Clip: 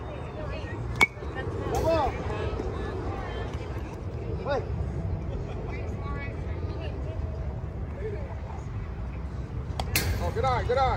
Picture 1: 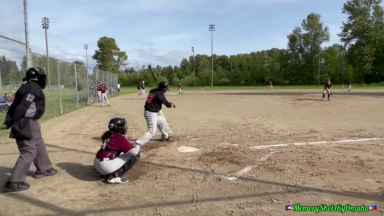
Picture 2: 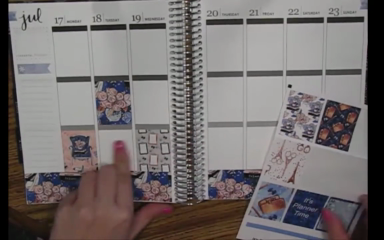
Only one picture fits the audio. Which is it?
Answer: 1